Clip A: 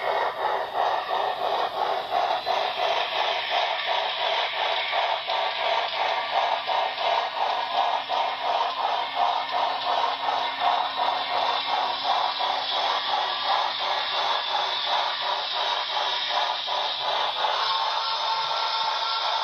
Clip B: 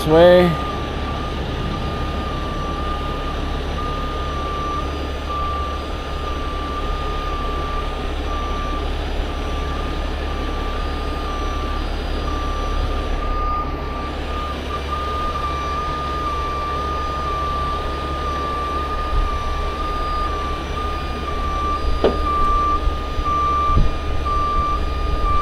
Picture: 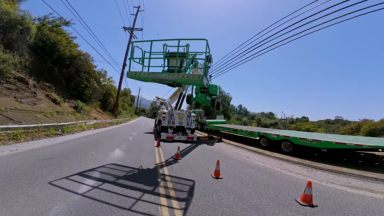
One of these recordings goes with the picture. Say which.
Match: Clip B